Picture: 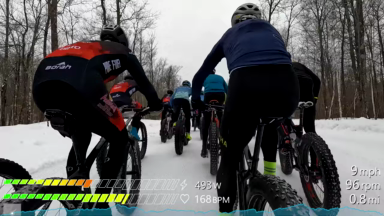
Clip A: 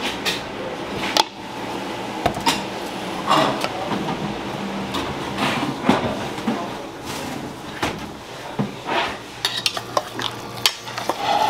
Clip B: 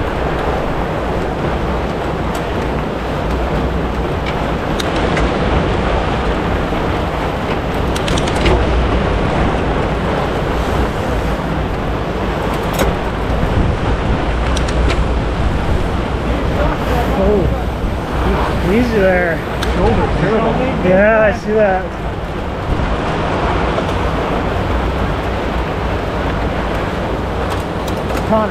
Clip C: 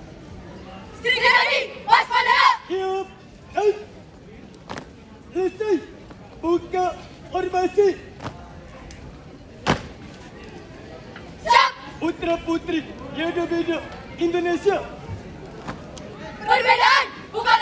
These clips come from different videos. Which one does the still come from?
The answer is B